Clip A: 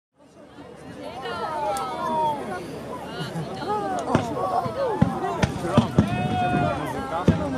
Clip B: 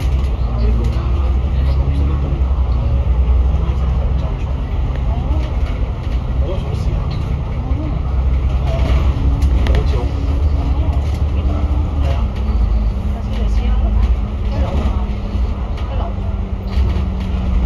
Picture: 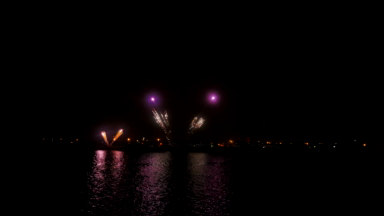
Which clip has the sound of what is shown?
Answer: A